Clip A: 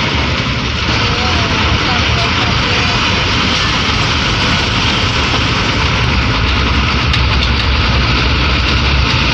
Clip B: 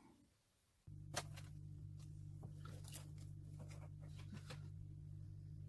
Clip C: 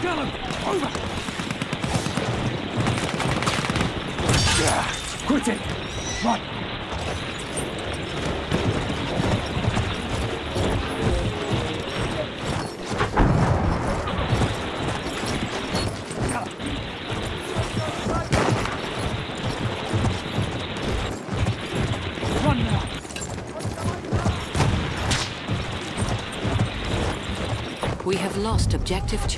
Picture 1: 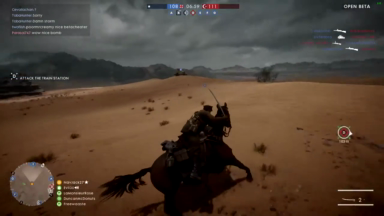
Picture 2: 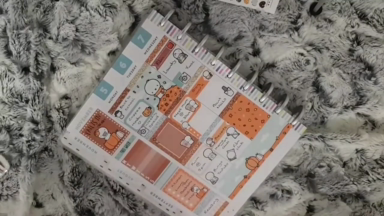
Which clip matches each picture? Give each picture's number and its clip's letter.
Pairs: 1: C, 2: B